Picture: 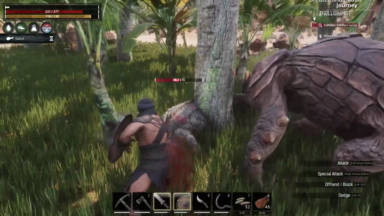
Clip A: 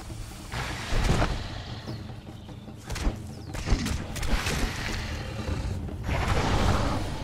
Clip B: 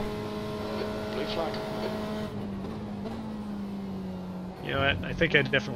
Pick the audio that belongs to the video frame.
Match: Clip A